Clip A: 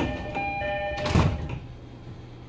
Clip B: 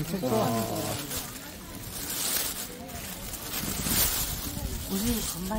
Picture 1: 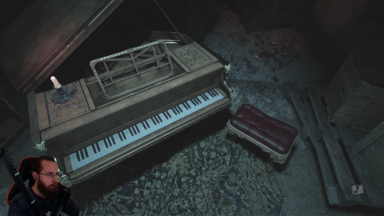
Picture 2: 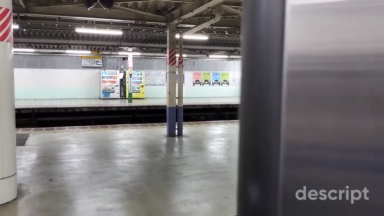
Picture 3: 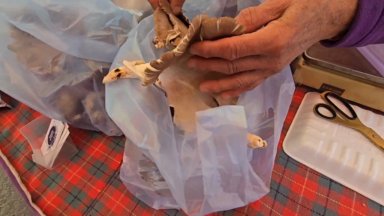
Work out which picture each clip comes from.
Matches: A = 2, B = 3